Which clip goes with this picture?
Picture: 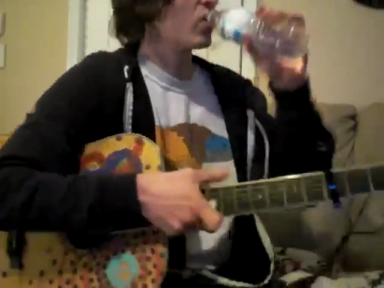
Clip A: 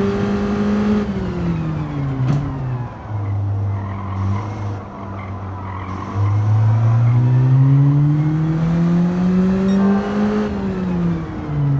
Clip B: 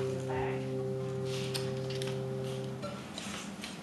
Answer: B